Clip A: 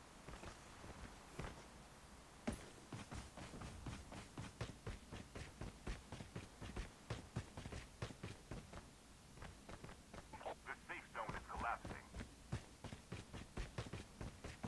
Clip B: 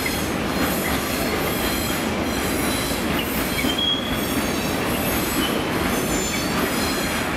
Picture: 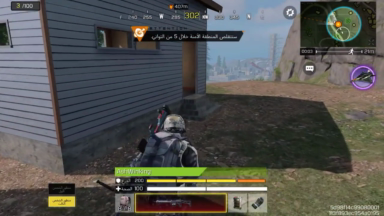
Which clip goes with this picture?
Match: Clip A